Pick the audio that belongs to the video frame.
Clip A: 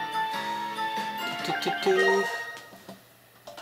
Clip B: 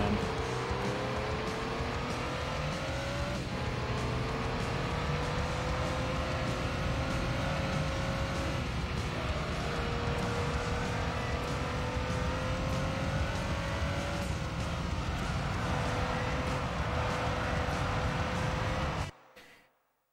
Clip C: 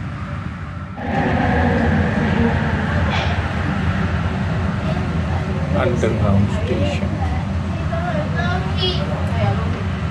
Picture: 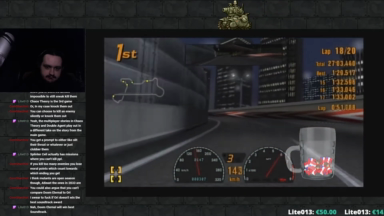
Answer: B